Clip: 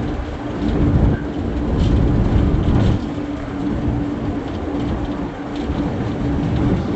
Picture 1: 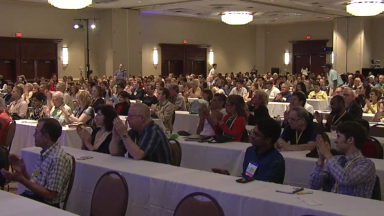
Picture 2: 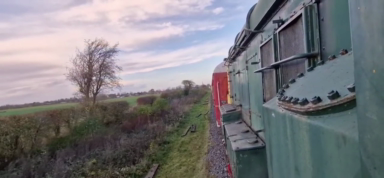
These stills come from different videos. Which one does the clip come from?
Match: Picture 2